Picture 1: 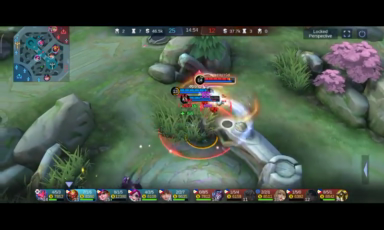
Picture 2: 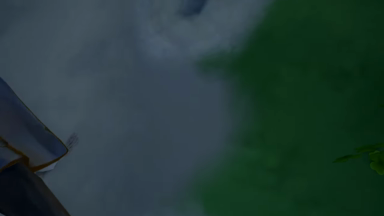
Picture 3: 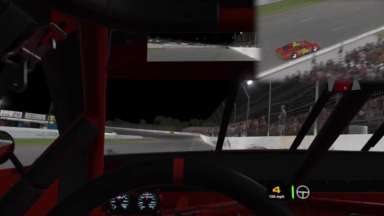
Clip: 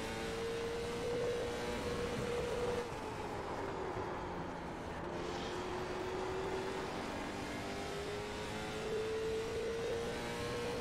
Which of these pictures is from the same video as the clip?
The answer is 3